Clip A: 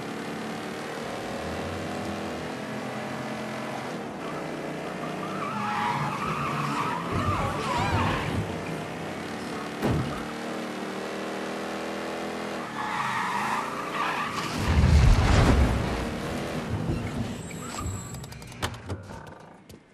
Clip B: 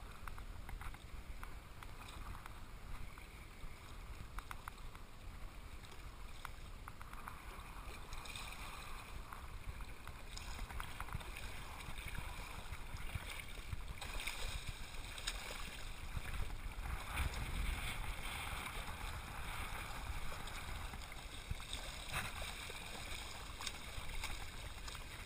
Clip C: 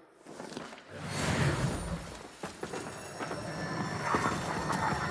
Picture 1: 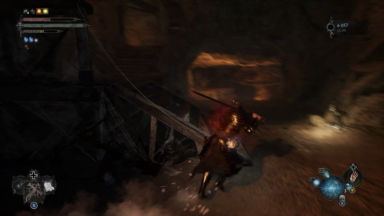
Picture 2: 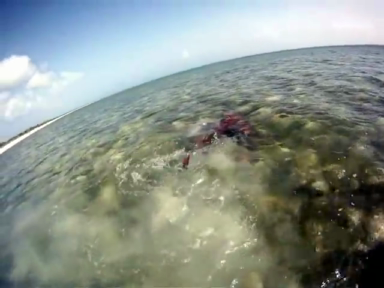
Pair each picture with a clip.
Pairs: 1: C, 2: B